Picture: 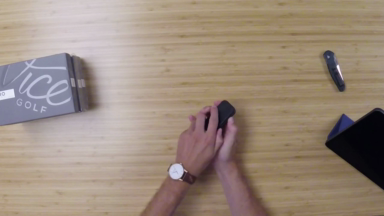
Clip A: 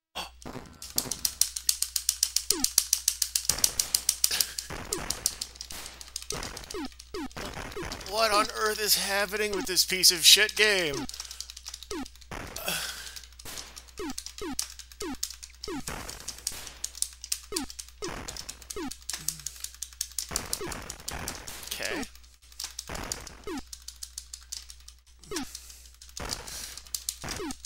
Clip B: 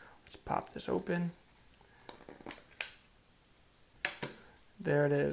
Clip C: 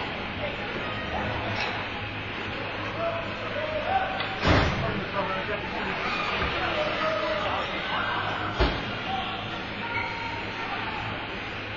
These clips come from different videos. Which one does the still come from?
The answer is B